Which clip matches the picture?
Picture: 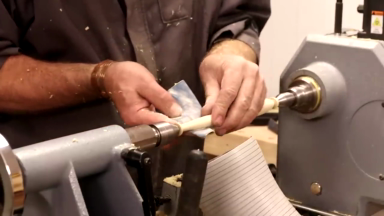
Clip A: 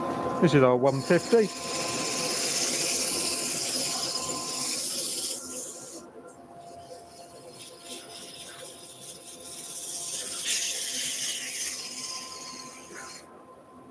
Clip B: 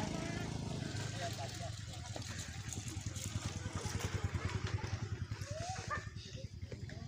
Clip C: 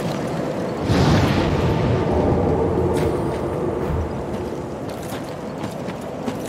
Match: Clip A